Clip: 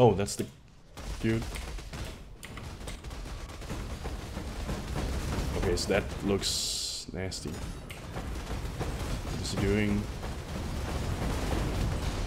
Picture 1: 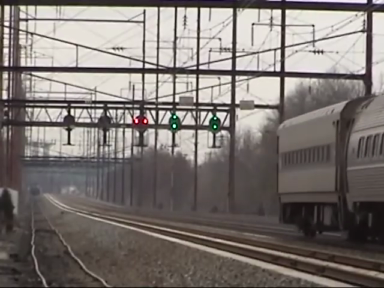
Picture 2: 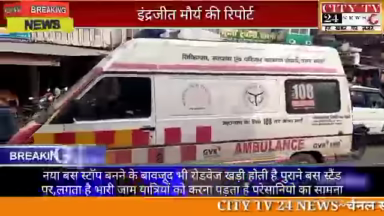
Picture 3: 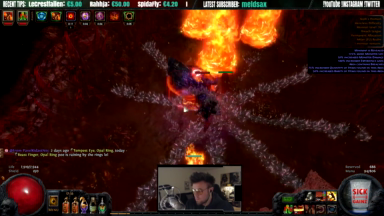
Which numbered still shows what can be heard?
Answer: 3